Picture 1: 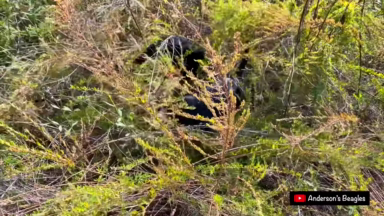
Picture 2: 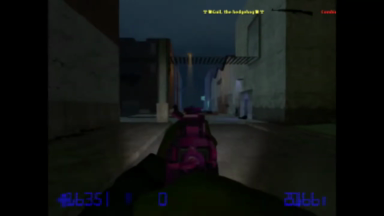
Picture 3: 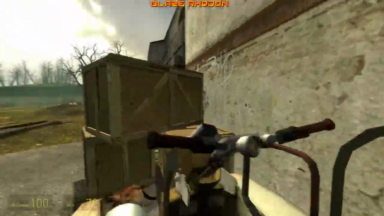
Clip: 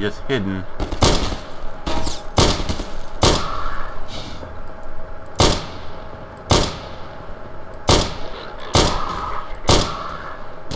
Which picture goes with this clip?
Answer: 2